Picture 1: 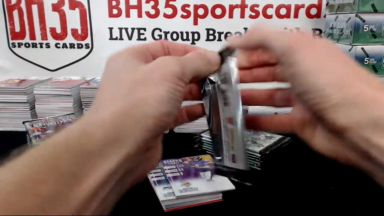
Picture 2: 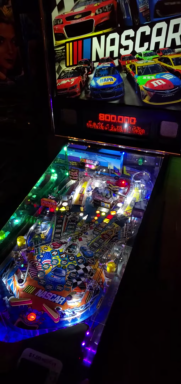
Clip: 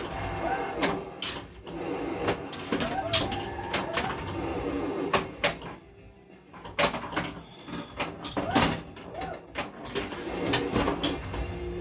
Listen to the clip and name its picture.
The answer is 2